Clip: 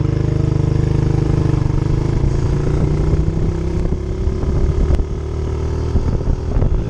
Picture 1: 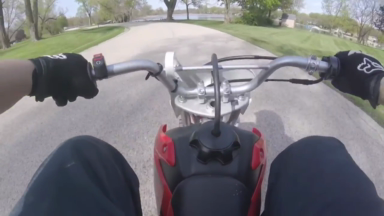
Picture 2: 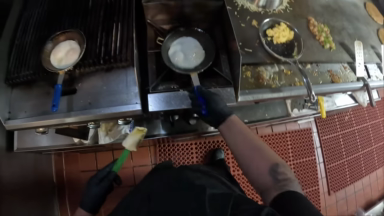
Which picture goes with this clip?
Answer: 1